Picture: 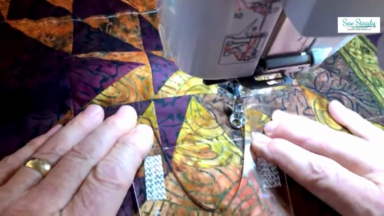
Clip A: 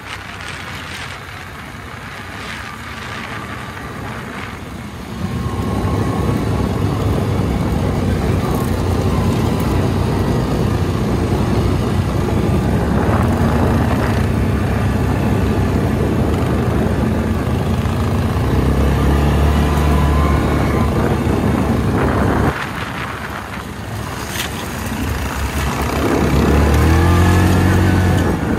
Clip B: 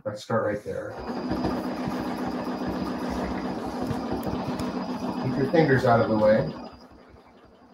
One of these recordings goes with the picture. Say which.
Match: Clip B